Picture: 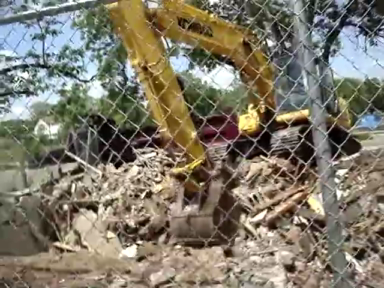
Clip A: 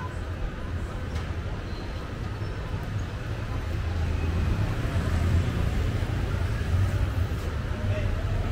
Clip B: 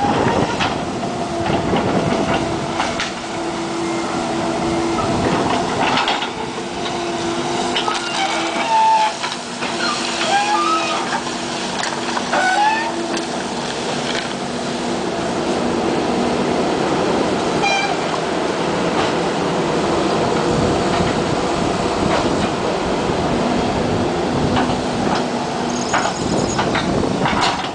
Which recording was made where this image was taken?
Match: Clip B